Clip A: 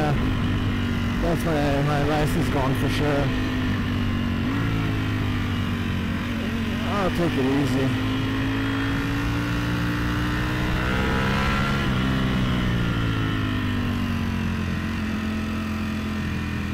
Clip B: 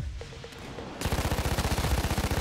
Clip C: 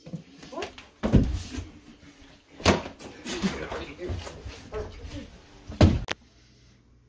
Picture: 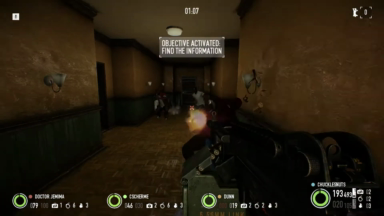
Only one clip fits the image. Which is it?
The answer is B